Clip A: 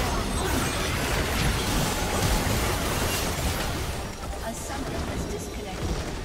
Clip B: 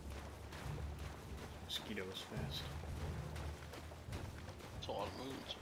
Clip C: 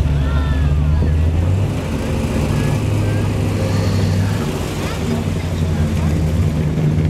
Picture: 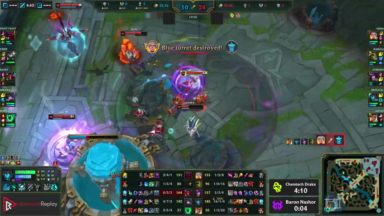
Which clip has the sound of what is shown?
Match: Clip A